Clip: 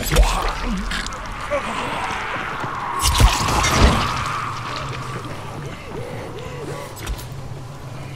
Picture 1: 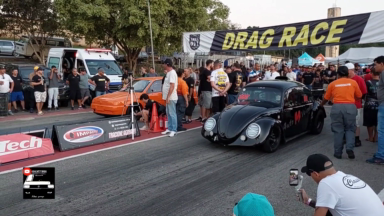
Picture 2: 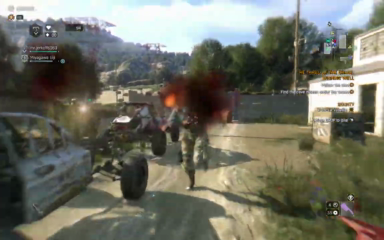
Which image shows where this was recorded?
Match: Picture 2